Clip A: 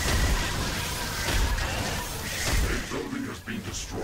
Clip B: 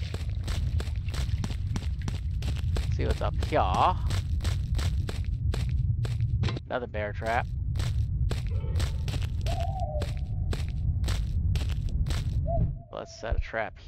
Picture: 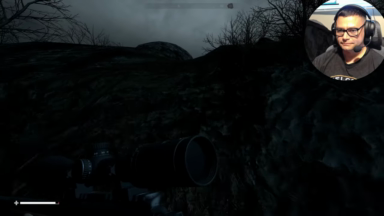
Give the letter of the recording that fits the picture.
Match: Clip B